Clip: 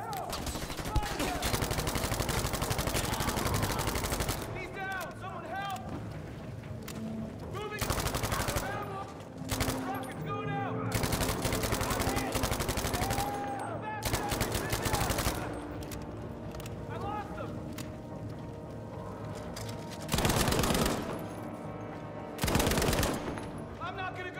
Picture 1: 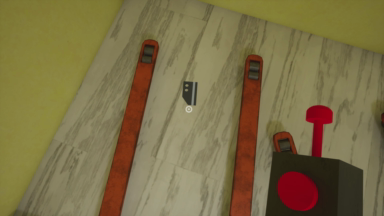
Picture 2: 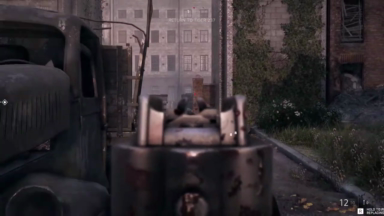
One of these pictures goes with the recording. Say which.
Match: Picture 2